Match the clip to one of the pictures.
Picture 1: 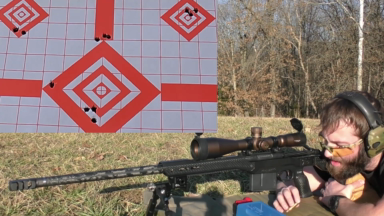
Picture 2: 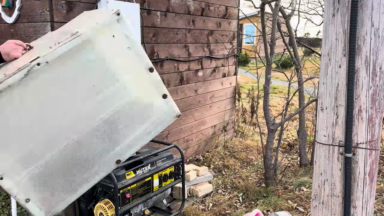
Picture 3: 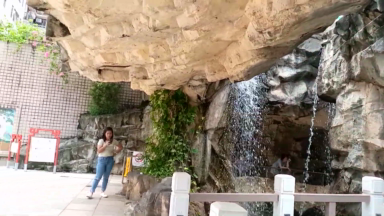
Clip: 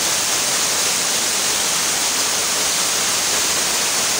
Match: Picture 3